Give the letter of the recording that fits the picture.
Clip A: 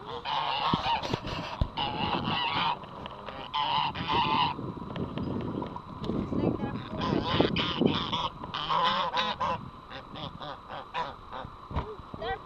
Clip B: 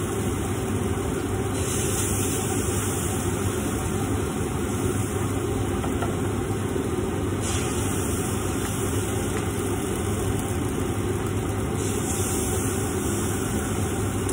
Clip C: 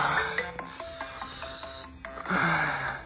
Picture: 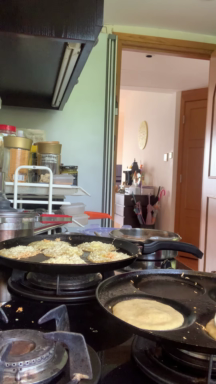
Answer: B